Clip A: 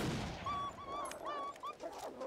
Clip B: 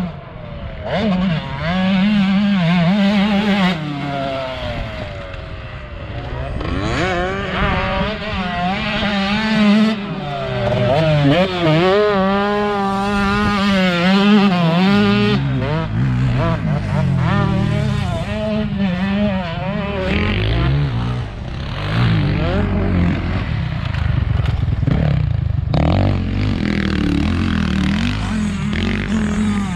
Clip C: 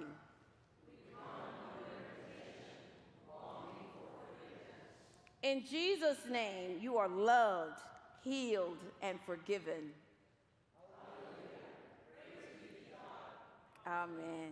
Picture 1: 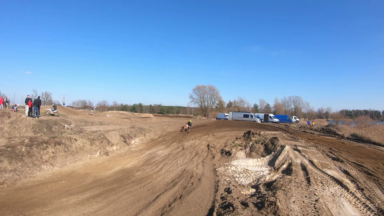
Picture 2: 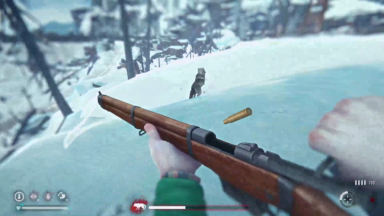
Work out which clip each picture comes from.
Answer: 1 B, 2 A